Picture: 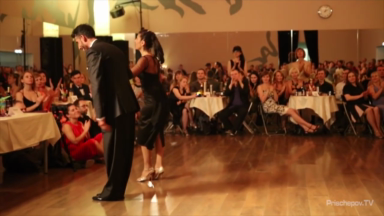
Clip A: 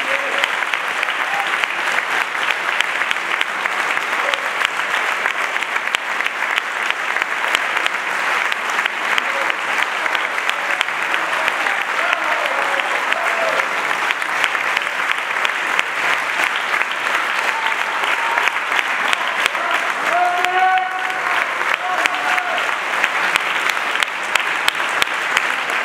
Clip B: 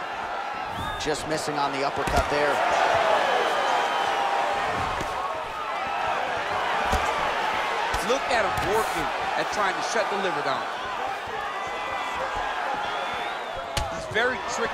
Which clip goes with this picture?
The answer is A